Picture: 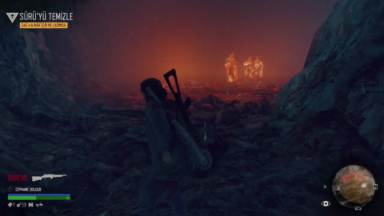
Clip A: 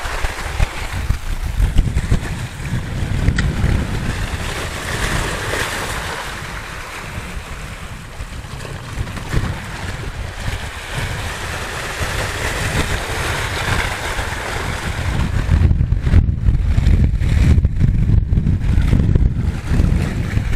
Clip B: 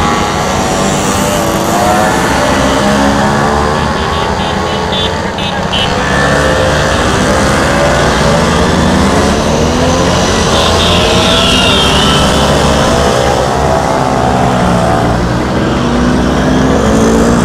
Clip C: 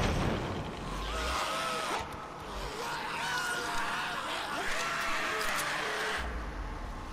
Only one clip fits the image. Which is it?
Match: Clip C